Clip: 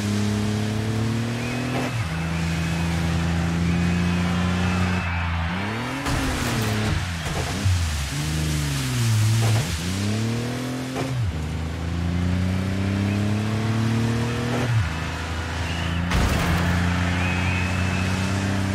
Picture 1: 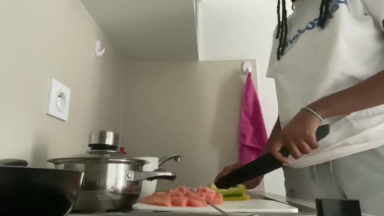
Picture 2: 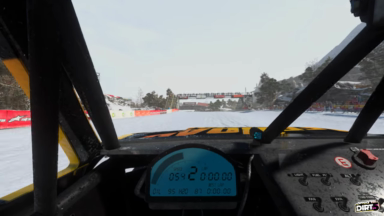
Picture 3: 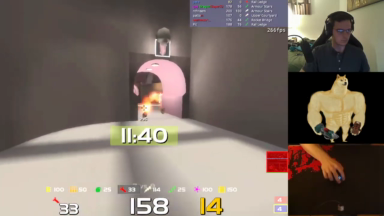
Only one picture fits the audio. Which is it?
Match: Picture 2